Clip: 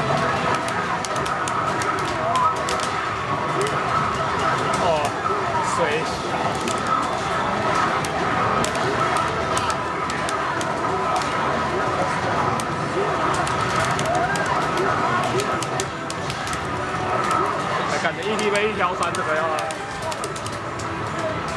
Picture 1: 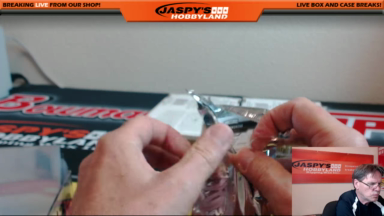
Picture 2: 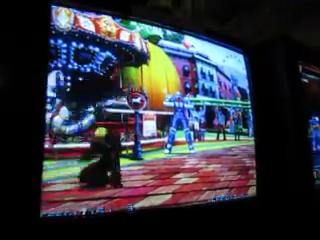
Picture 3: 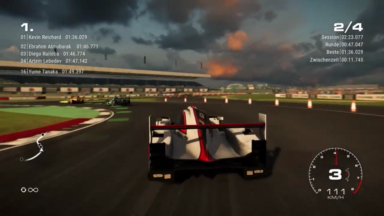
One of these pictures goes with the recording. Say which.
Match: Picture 2